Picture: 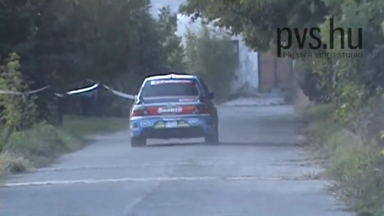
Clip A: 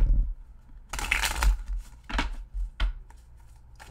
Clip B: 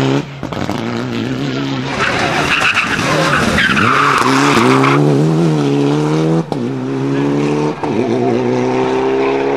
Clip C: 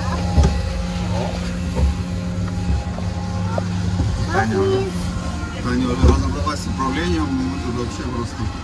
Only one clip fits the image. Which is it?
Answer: B